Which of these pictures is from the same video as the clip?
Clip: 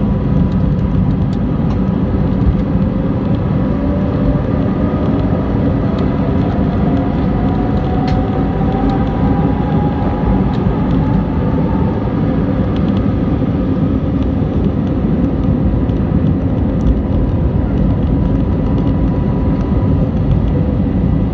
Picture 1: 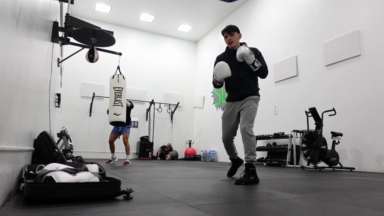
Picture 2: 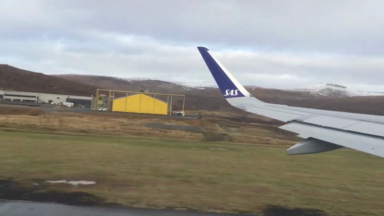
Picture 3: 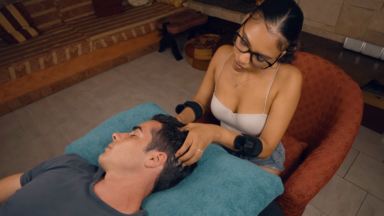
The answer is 2